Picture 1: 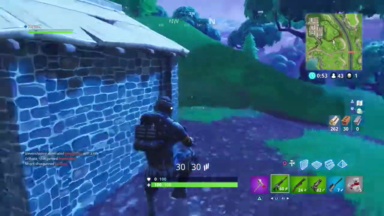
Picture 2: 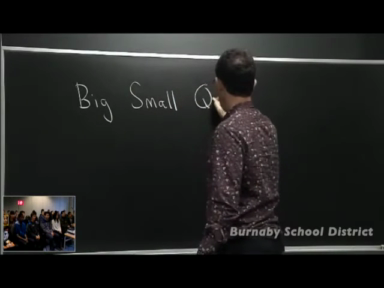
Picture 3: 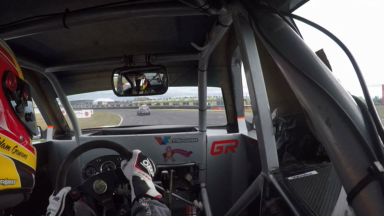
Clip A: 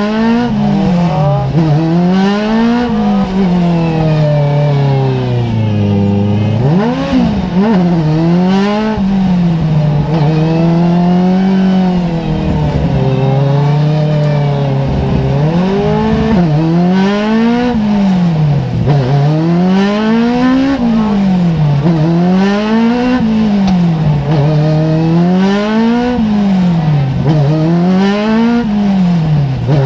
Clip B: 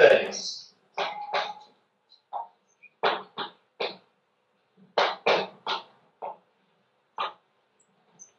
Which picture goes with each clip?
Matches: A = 3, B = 2